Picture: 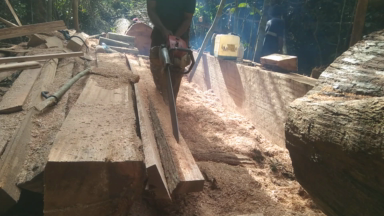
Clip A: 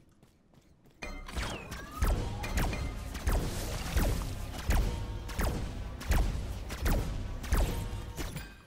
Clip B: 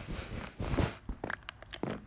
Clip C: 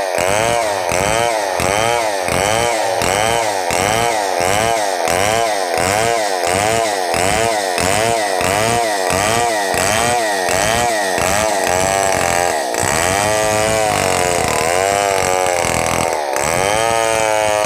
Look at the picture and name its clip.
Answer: C